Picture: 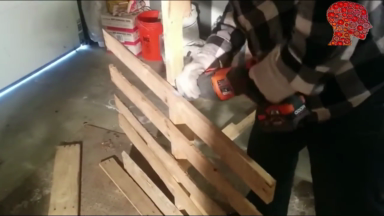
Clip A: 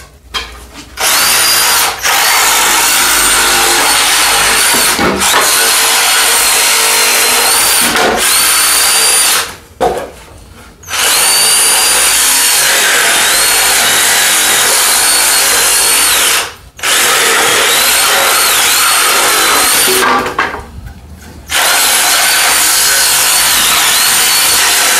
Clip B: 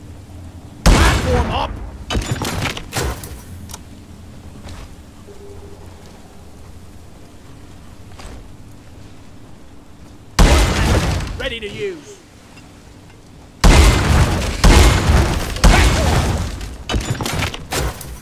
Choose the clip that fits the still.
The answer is A